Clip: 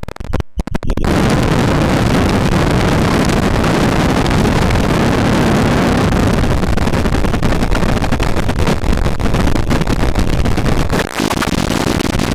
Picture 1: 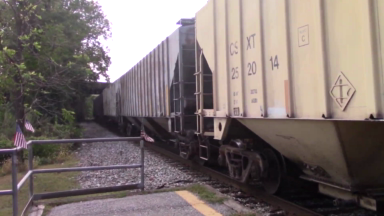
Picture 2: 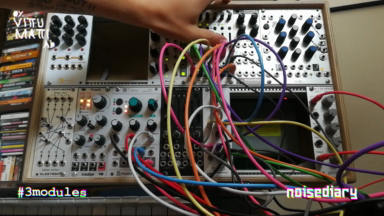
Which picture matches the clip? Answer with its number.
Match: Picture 2